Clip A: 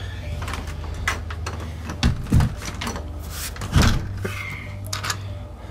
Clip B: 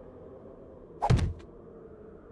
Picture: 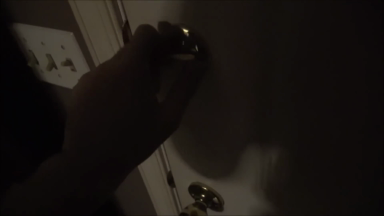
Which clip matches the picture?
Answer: A